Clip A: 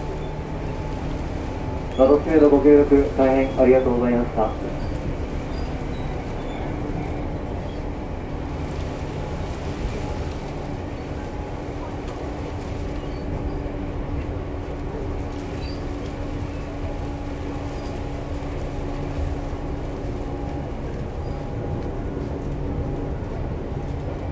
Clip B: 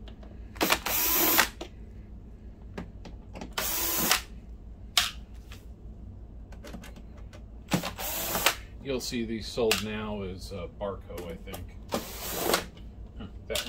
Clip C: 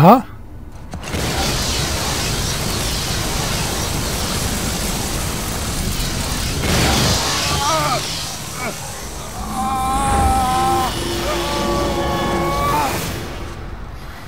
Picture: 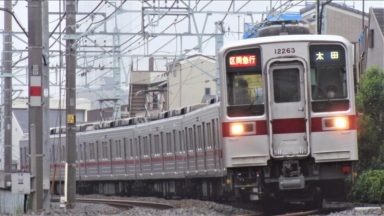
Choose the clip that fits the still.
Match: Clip A